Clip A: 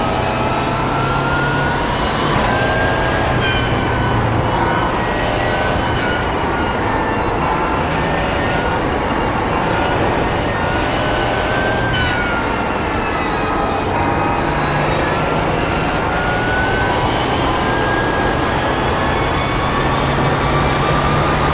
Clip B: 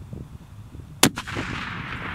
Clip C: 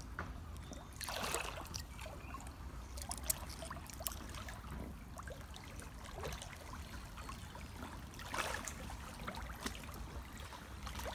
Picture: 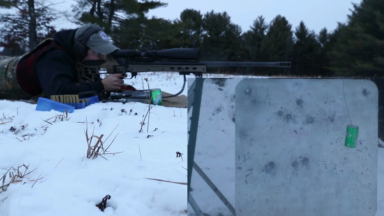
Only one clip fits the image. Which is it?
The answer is B